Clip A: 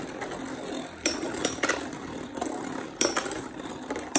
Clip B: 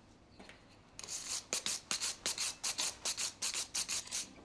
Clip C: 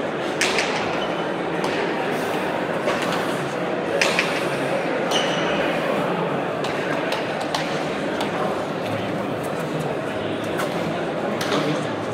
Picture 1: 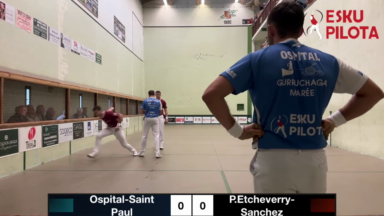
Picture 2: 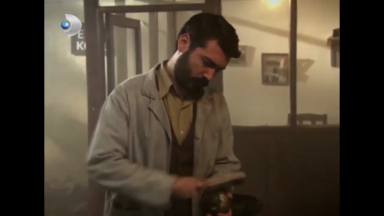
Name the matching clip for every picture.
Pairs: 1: C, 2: B